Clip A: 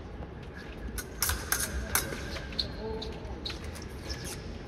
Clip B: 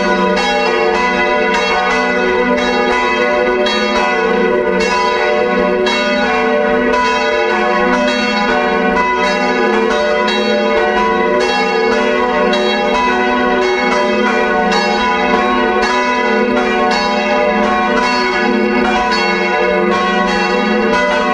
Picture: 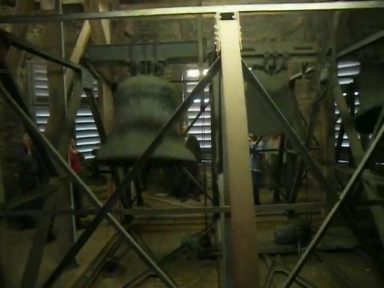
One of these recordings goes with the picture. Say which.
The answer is B